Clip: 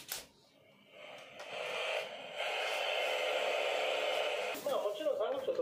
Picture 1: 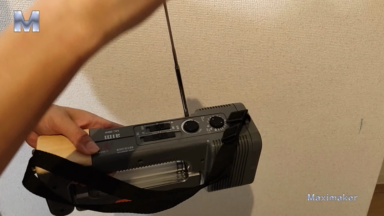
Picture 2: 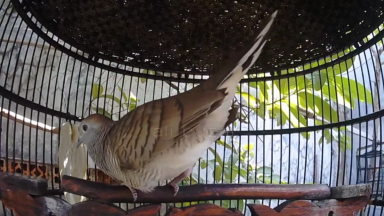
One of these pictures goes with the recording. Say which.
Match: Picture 1